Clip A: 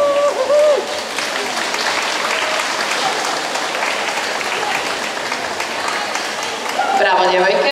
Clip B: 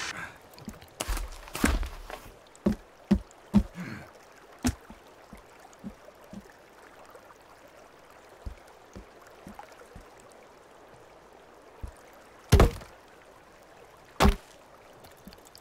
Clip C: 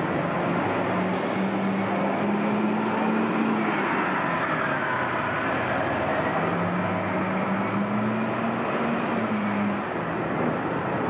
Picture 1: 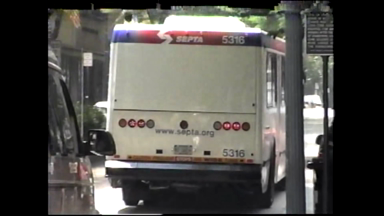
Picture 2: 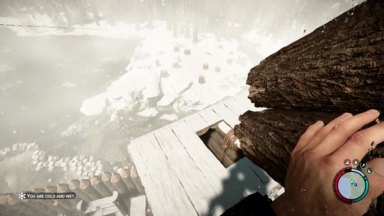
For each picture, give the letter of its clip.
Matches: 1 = C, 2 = B